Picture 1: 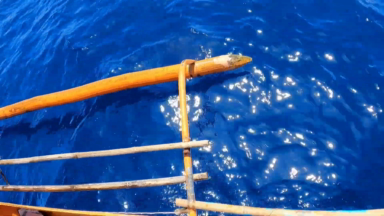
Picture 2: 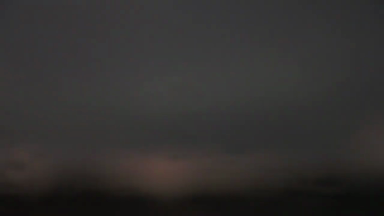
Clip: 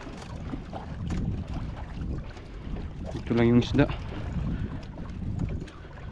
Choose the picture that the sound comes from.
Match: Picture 1